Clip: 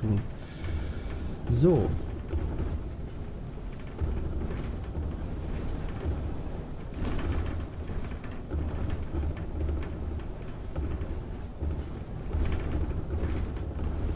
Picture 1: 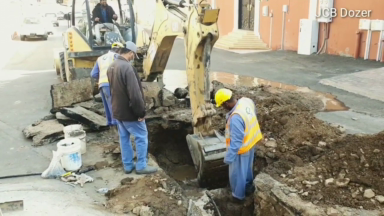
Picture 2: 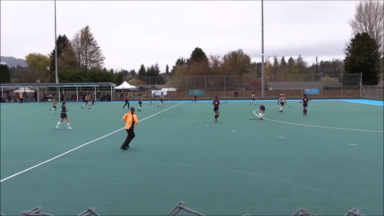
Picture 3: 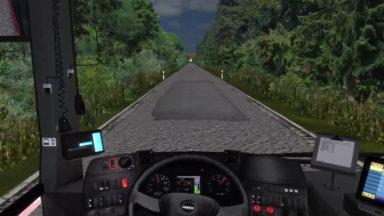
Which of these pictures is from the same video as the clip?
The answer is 3